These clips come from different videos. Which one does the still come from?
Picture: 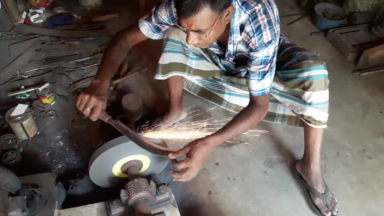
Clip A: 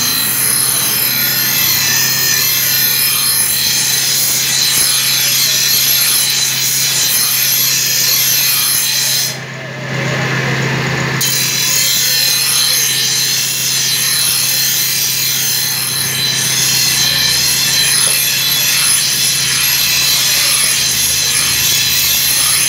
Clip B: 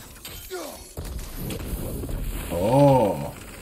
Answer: A